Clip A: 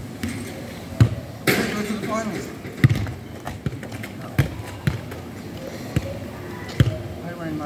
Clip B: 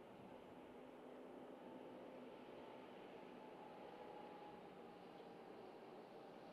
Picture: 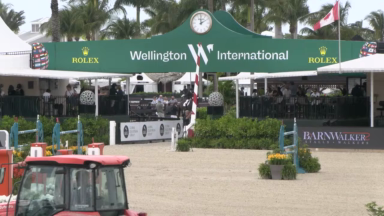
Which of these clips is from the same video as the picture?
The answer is B